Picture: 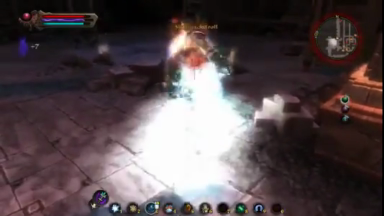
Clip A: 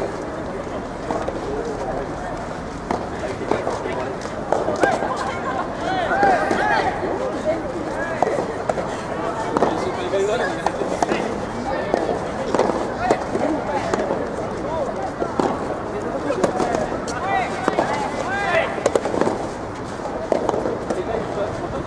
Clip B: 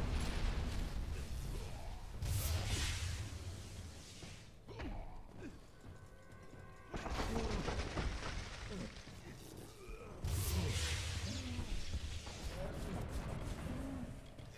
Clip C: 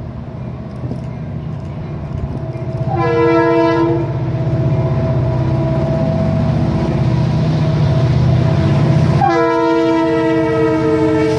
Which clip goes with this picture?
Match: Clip B